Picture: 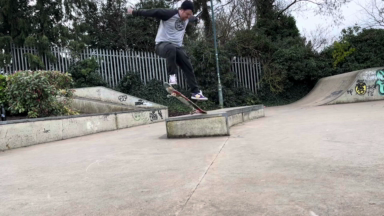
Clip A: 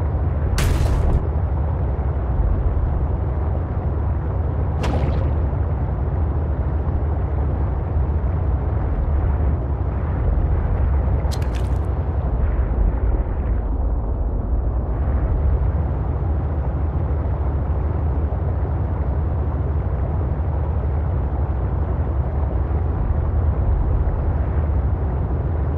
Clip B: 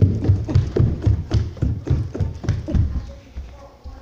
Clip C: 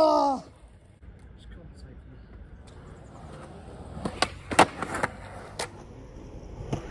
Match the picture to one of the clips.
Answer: C